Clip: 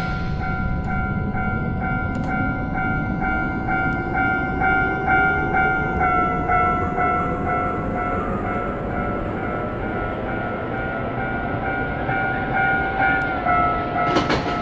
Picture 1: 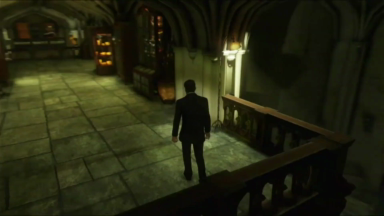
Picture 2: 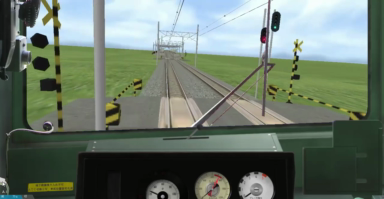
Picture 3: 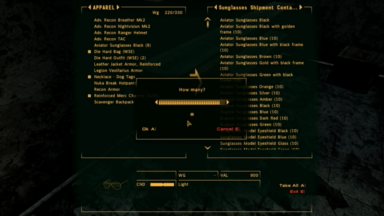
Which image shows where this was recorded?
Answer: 2